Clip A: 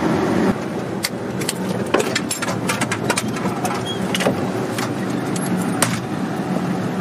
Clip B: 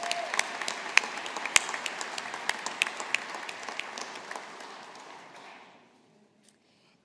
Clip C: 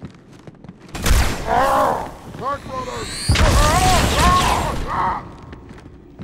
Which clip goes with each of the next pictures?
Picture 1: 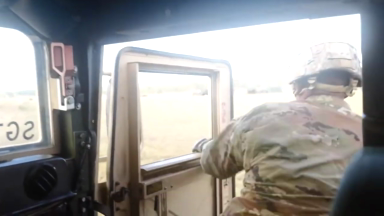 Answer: A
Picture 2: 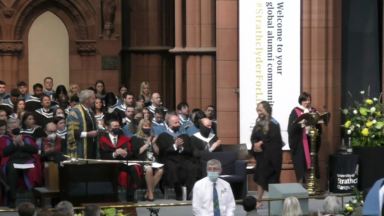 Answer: B